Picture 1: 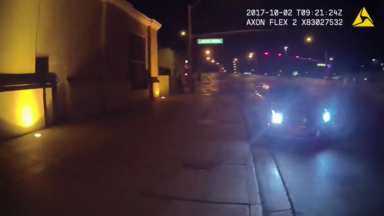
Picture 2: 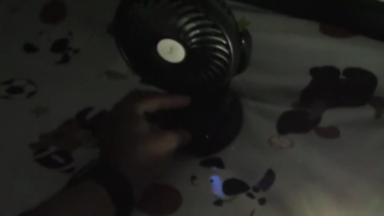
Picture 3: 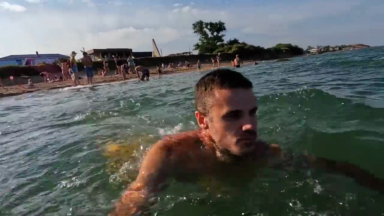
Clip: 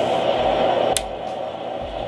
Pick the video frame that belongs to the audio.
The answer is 2